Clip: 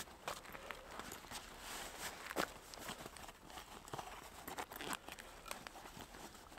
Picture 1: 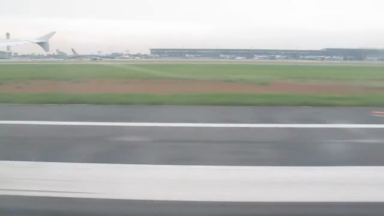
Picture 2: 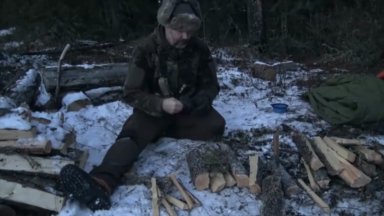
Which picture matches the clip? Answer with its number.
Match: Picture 2